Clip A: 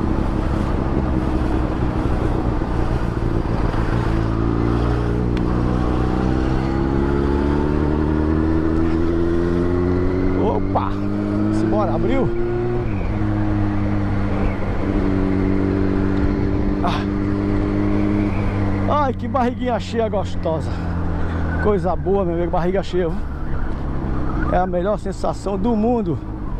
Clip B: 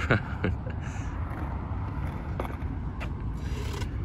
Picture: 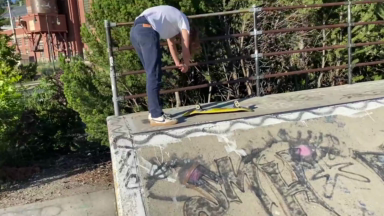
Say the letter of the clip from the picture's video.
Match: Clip B